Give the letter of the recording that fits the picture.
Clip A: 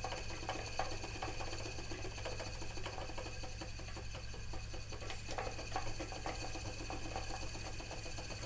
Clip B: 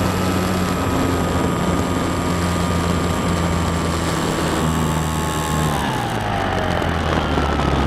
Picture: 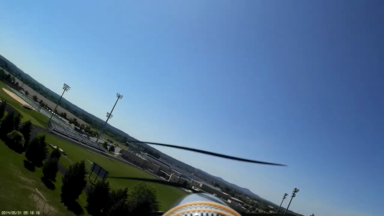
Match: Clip B